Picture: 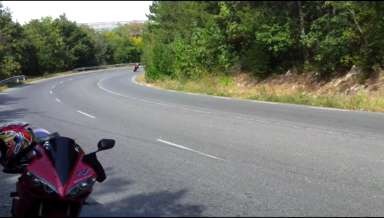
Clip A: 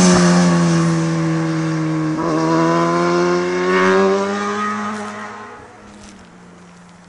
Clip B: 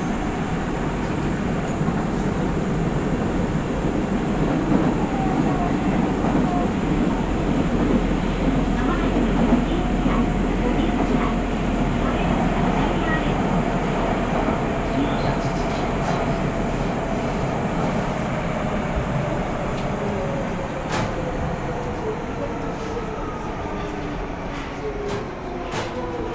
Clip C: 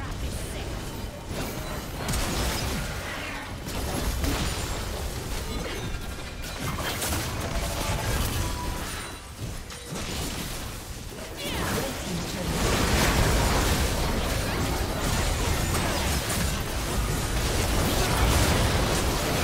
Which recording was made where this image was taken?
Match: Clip A